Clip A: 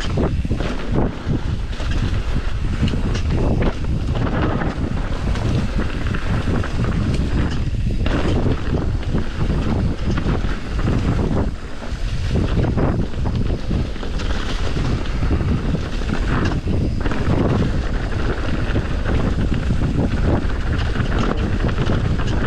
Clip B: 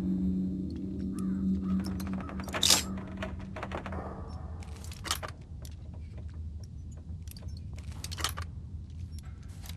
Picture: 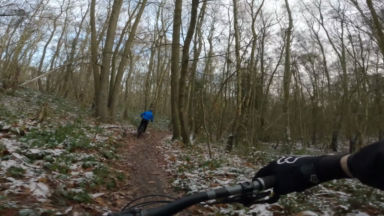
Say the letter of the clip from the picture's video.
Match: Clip A